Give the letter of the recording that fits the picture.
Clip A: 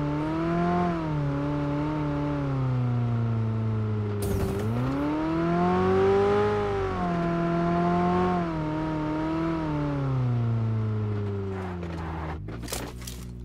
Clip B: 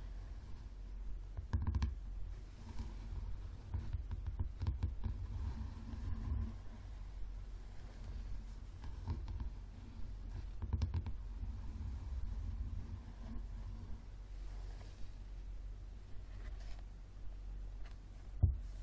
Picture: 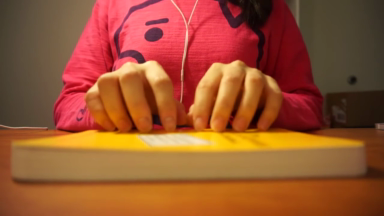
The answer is B